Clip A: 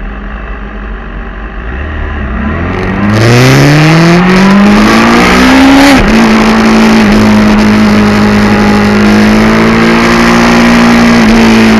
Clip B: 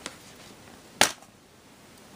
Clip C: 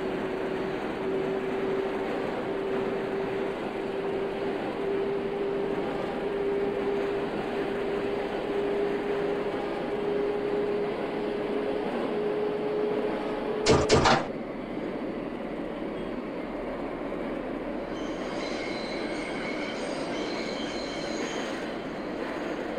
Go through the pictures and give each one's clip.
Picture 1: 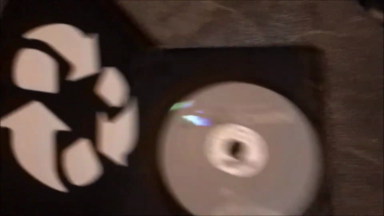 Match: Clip B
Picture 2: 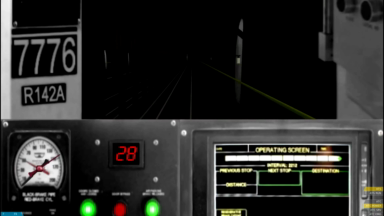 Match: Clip C